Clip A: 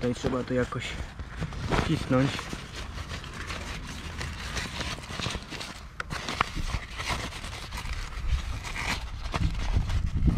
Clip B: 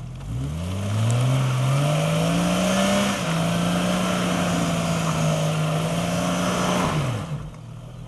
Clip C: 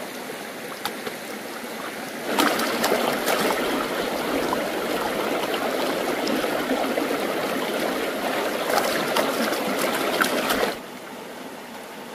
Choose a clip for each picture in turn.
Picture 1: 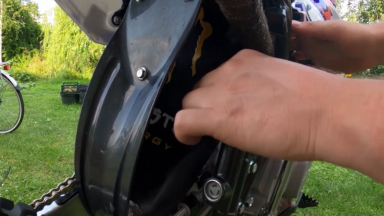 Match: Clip A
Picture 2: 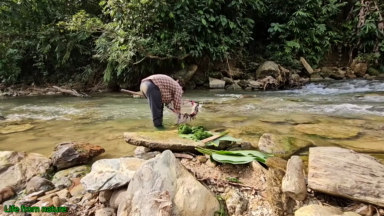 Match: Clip C